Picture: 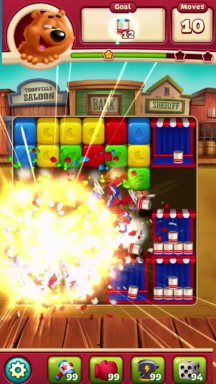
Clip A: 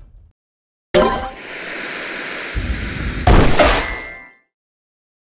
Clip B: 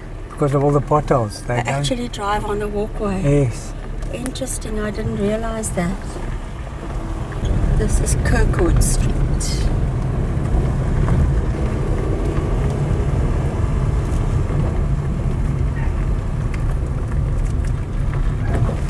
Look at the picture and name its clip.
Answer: A